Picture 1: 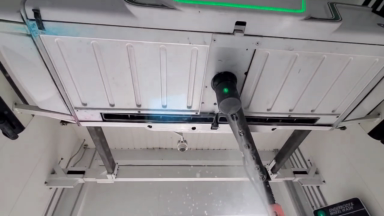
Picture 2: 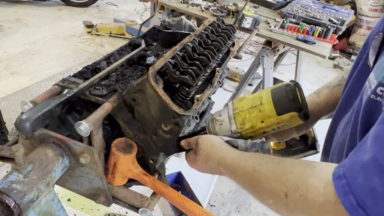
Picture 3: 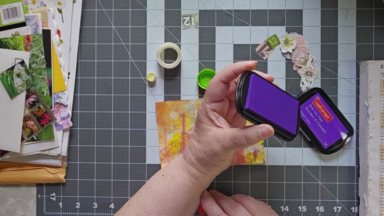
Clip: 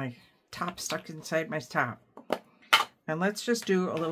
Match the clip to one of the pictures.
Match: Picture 3